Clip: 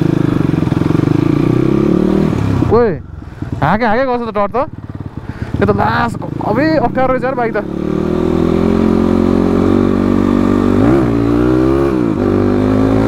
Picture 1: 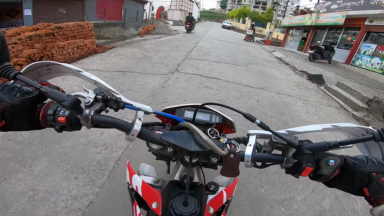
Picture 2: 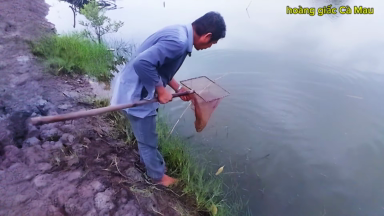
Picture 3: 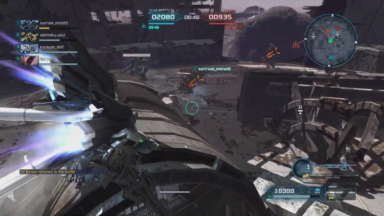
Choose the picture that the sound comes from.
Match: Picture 1